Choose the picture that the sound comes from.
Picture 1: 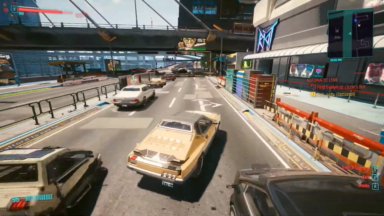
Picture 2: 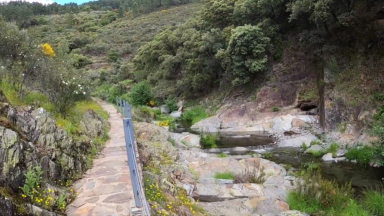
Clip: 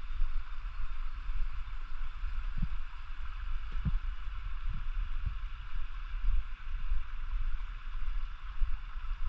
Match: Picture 2